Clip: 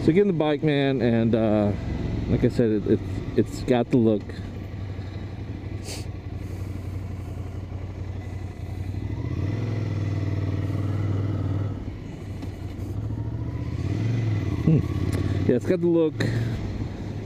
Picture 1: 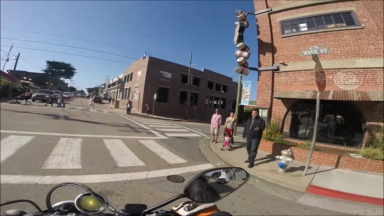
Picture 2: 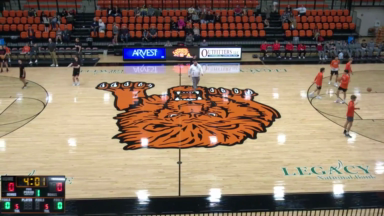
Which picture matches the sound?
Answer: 1